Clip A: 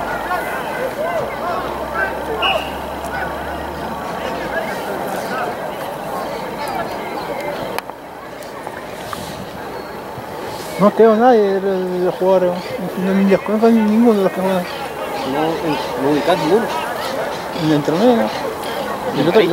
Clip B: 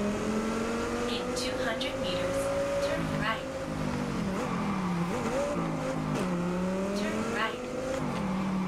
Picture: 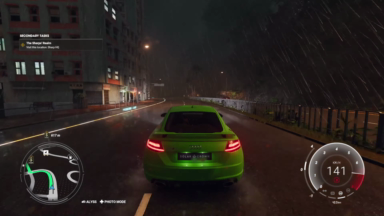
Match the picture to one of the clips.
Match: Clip B